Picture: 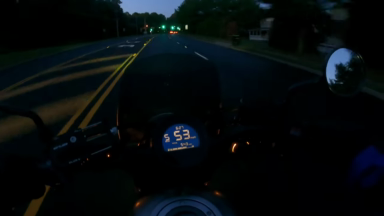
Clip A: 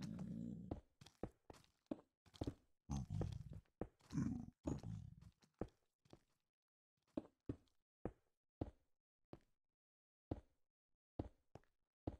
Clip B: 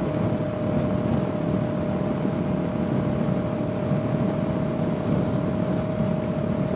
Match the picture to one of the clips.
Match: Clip B